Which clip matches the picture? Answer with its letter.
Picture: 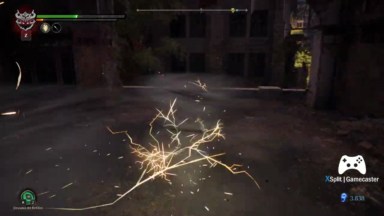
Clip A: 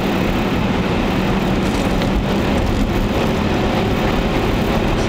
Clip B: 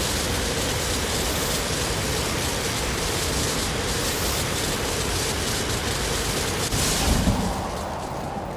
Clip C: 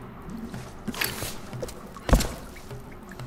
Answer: B